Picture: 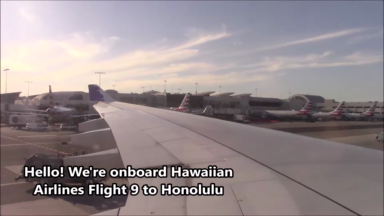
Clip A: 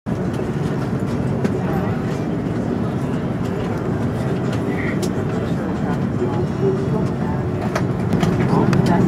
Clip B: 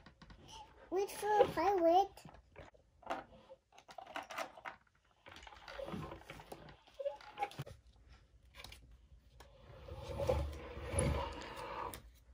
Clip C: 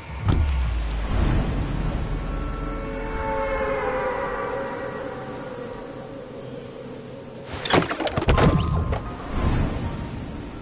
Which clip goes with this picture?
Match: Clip A